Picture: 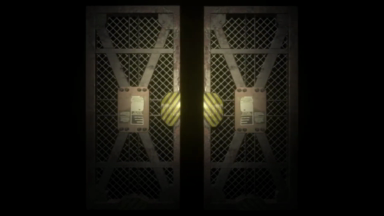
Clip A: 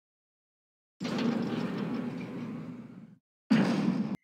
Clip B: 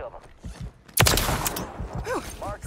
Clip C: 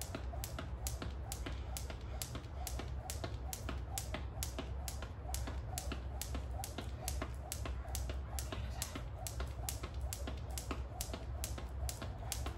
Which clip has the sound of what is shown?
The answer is A